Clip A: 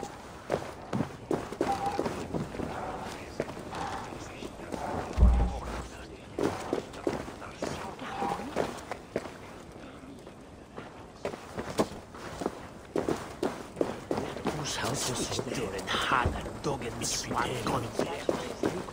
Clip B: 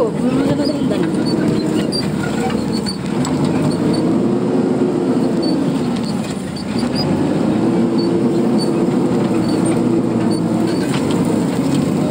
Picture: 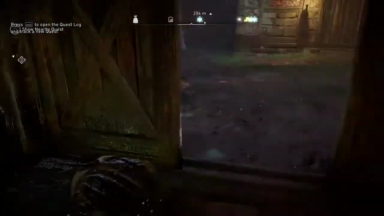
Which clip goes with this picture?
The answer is A